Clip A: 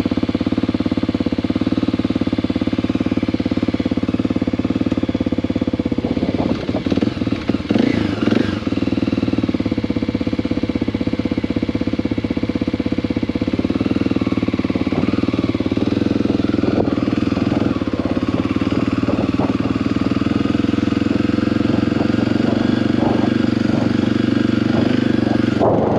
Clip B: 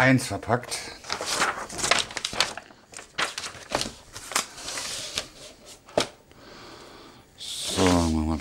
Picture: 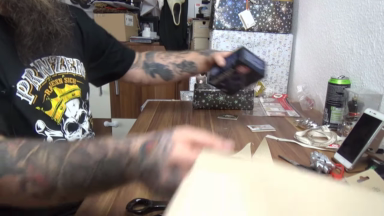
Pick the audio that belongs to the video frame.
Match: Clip B